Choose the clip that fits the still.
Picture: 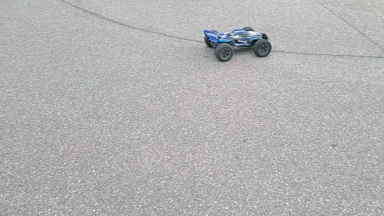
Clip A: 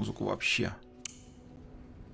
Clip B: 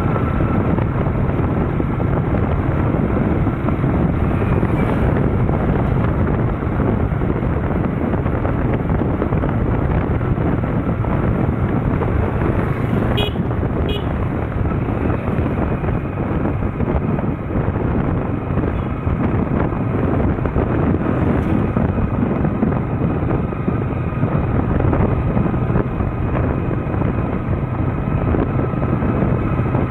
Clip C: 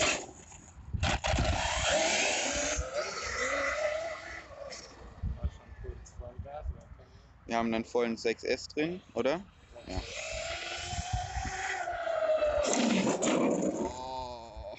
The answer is C